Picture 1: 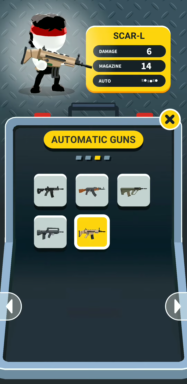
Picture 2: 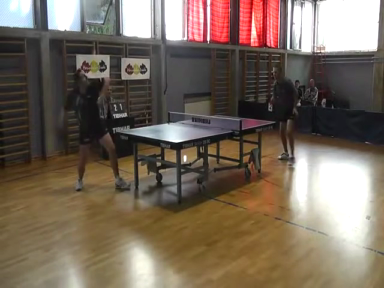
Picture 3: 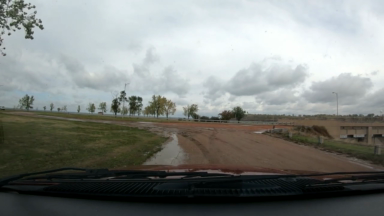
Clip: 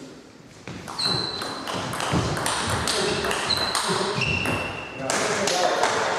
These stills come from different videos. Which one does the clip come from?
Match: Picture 2